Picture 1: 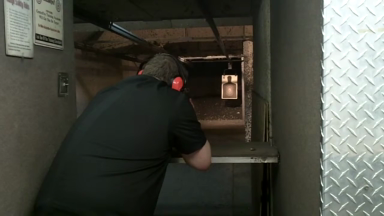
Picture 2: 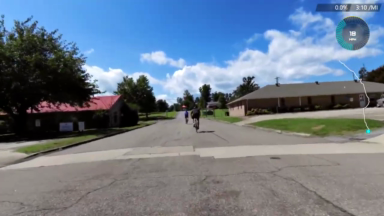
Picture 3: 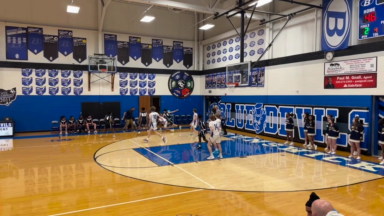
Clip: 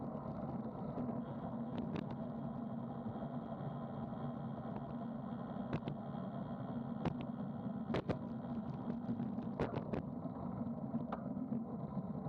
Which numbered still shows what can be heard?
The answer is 2